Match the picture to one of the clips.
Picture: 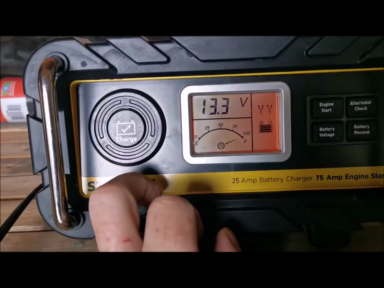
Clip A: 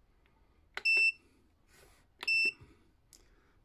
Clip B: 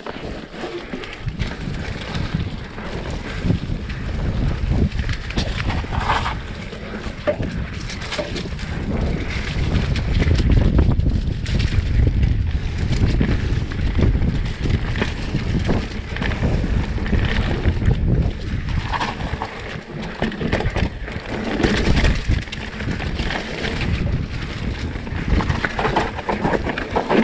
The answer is A